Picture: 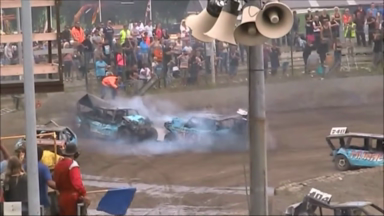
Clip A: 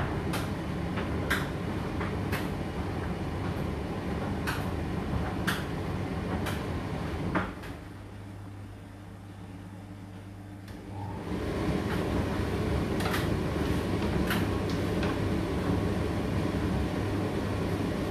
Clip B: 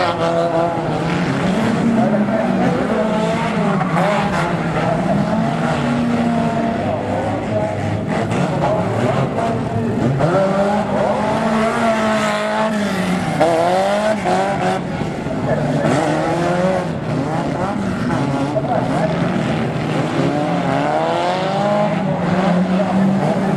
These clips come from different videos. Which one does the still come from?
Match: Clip B